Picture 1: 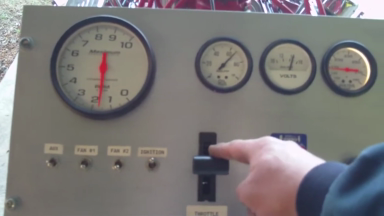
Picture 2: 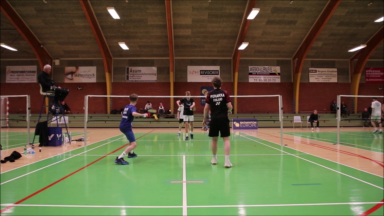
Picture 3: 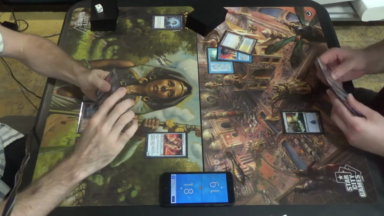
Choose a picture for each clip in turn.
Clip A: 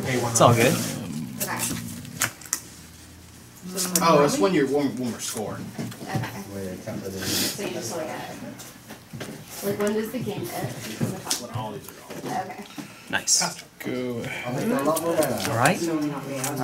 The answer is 3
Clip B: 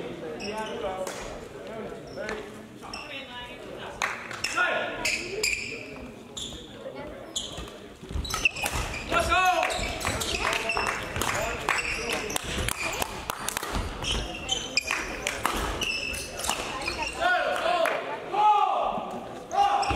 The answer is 2